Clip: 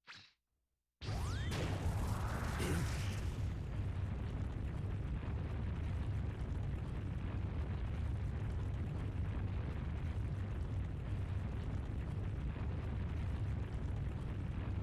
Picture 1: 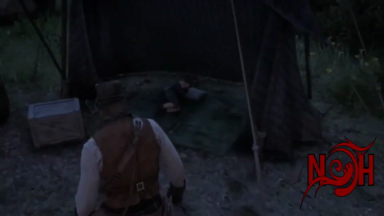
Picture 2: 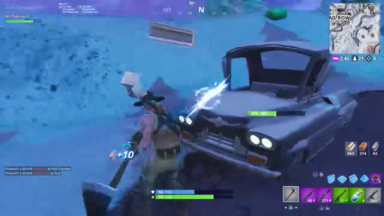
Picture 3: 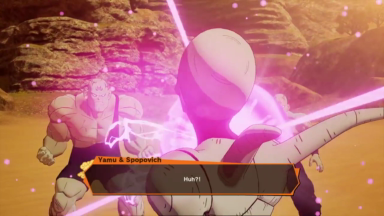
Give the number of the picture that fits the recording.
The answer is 3